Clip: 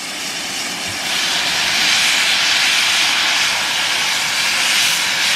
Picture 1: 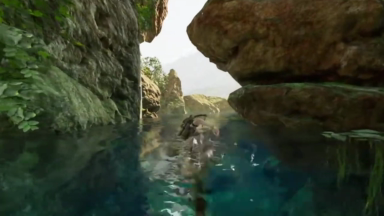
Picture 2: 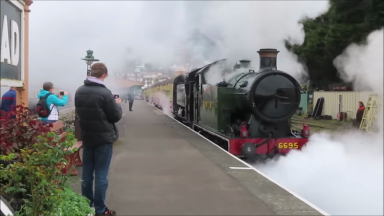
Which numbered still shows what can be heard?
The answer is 2